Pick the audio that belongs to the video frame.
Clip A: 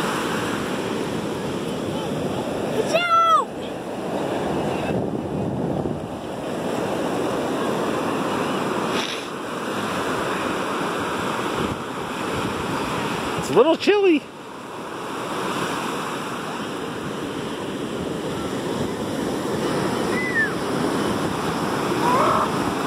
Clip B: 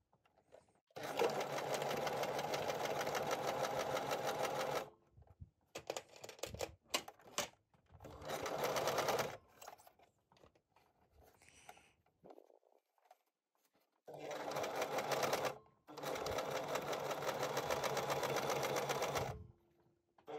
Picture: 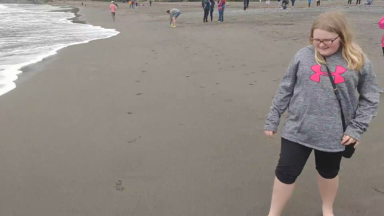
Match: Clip A